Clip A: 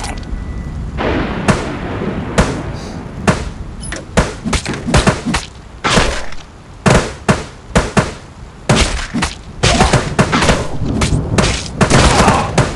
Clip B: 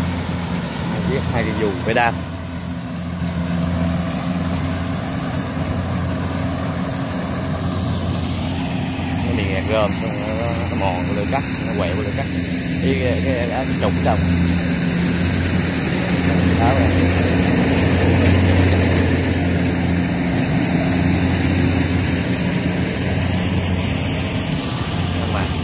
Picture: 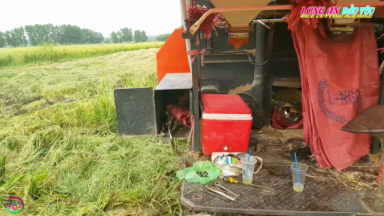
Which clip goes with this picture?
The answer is B